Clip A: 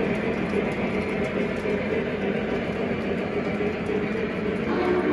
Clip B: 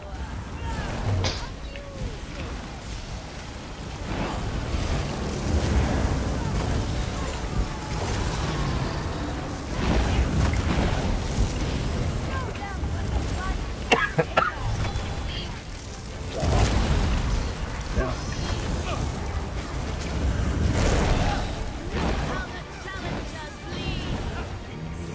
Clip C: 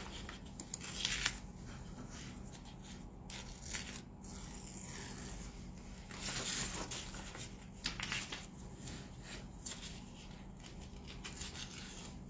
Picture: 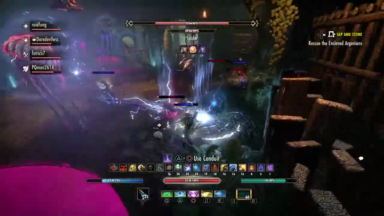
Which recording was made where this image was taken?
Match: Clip B